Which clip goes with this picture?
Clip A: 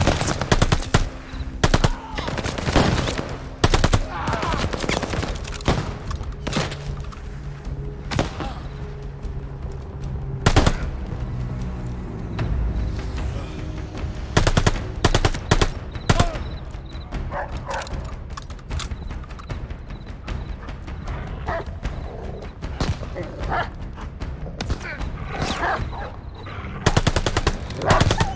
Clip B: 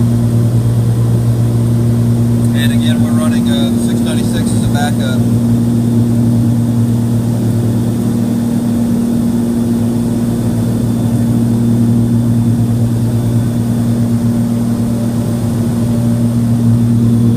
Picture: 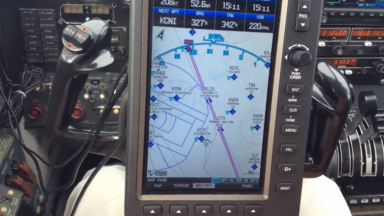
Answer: B